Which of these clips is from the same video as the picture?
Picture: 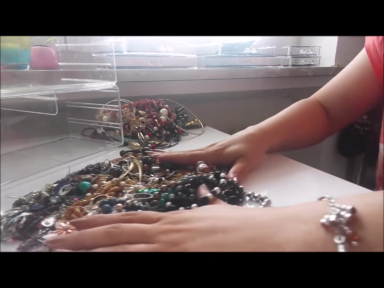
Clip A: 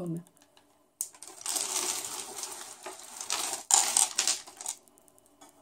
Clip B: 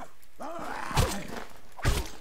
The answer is A